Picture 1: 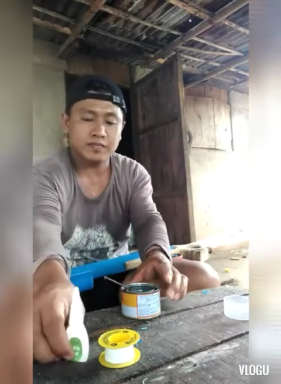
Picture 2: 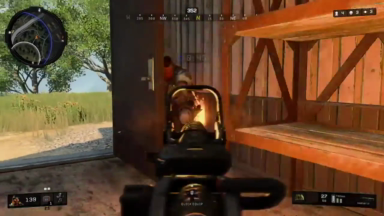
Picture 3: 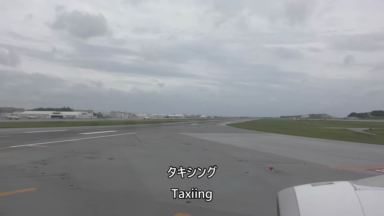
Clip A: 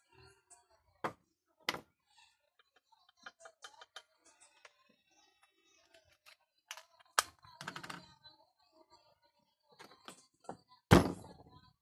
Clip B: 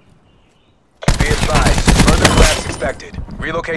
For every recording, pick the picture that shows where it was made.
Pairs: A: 1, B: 2